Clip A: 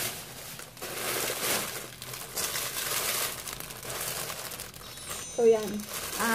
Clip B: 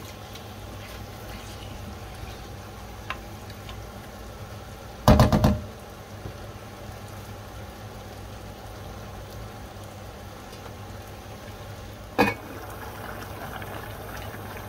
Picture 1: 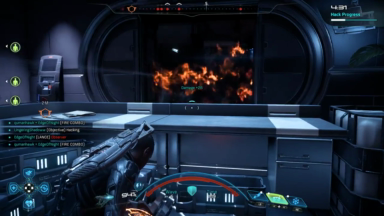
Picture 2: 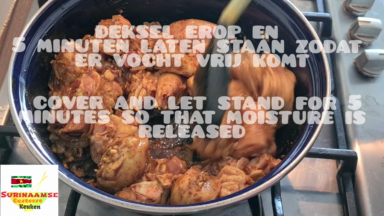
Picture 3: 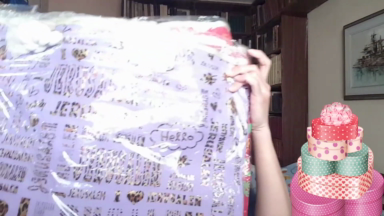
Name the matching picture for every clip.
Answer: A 3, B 2